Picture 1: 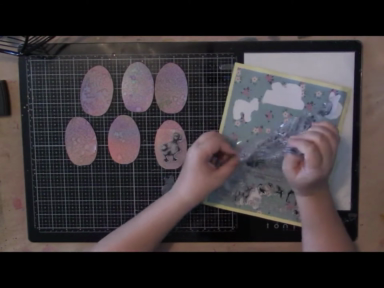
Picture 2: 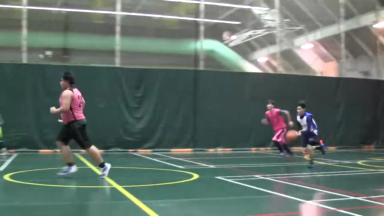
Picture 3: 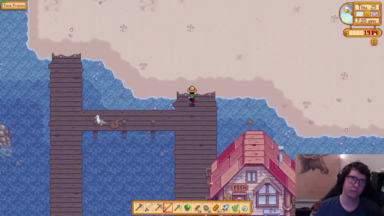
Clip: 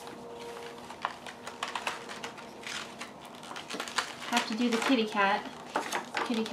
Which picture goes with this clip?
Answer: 1